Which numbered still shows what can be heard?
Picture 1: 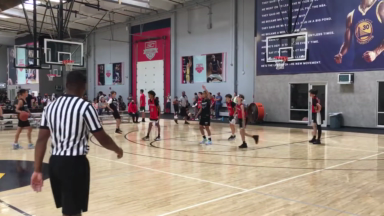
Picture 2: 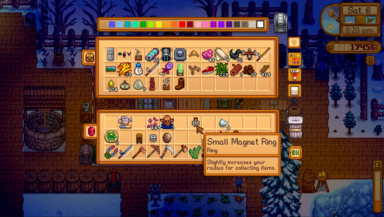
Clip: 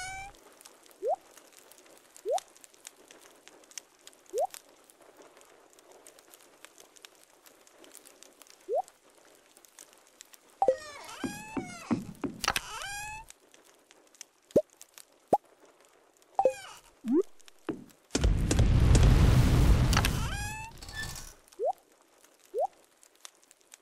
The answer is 2